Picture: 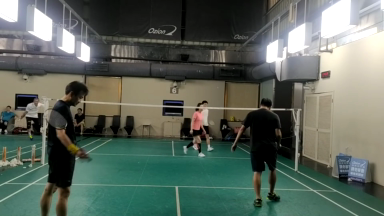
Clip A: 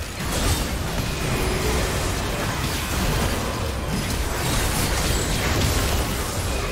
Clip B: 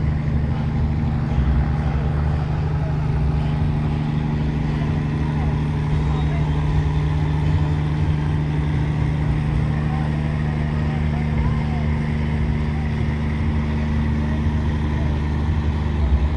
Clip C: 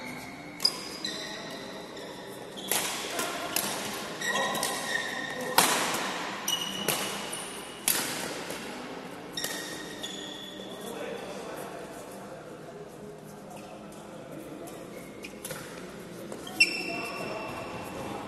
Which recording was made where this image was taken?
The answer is C